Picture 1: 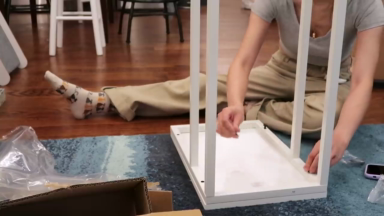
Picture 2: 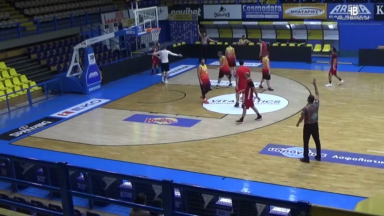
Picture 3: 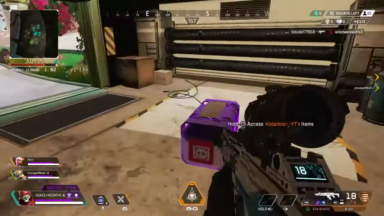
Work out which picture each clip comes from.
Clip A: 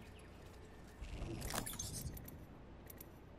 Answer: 3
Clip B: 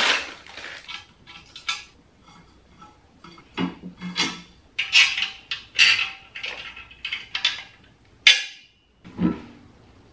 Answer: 1